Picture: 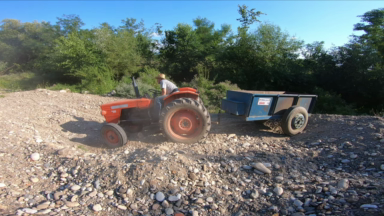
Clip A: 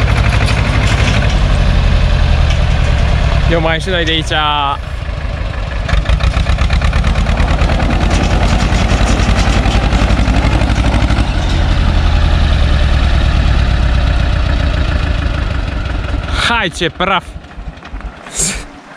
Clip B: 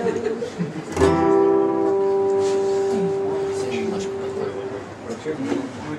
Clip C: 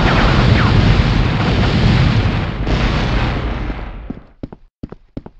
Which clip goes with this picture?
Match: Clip A